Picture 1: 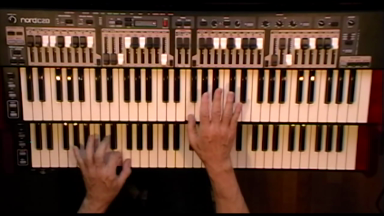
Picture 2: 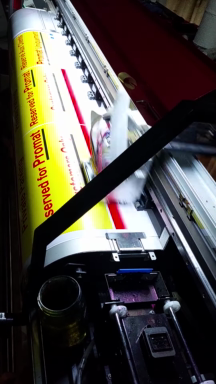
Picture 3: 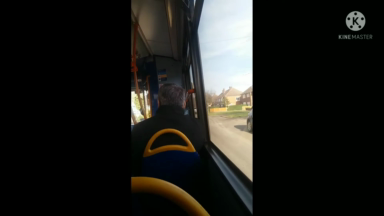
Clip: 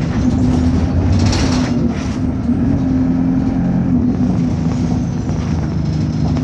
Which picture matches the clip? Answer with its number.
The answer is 3